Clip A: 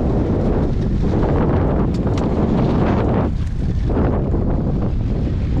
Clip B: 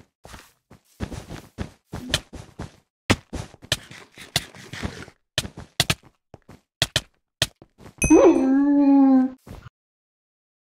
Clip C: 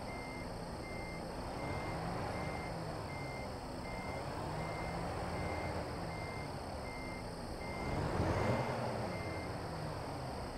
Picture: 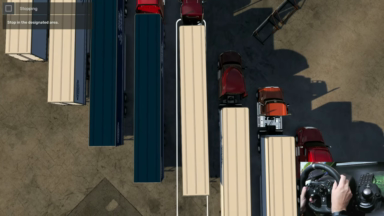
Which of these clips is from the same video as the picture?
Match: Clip C